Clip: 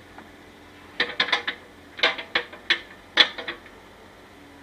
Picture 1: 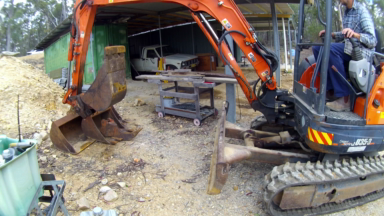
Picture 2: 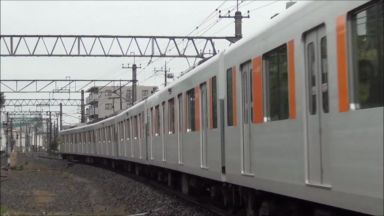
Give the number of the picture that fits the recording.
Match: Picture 1